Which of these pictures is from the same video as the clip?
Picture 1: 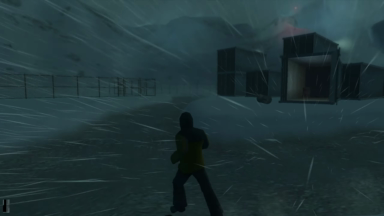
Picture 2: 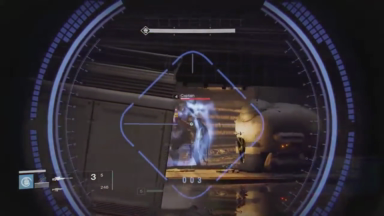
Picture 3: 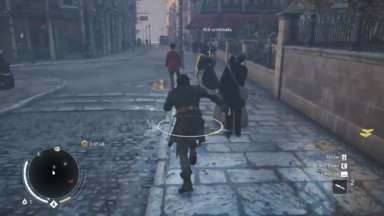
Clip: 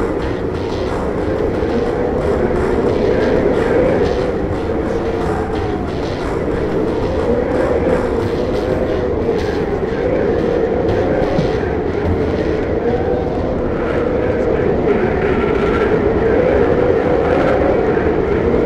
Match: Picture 1